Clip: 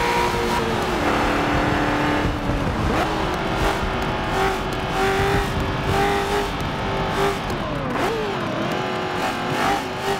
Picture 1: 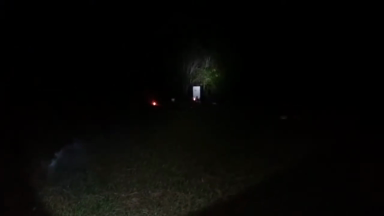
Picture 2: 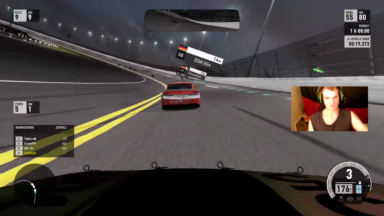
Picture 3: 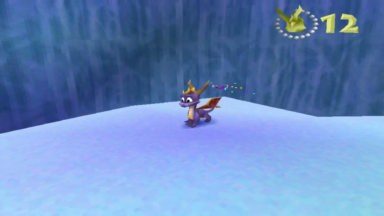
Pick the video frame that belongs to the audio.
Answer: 2